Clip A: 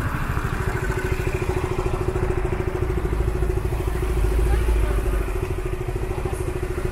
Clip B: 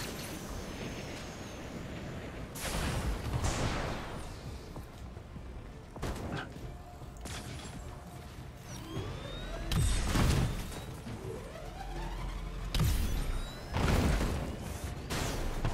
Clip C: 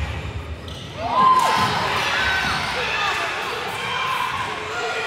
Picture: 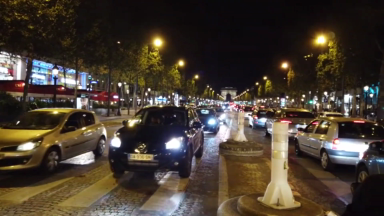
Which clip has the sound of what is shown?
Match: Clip A